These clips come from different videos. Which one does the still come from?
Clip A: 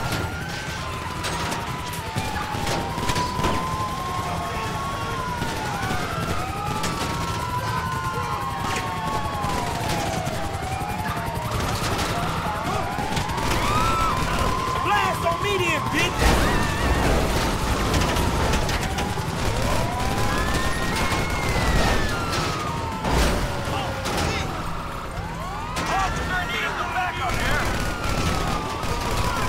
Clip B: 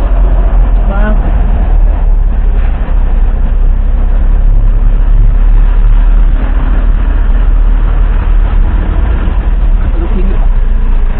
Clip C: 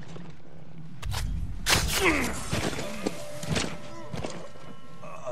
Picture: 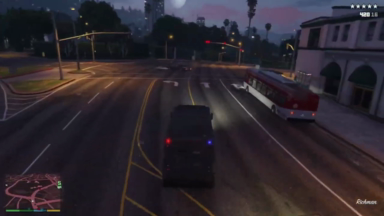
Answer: A